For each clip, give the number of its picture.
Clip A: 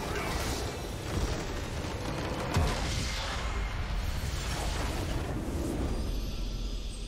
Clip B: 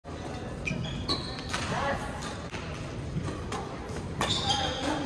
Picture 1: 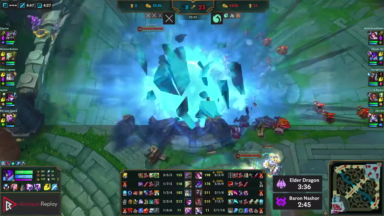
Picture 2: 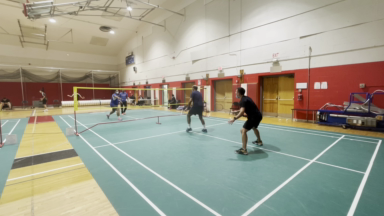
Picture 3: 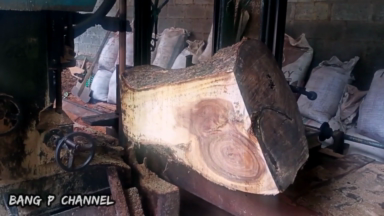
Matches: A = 1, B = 2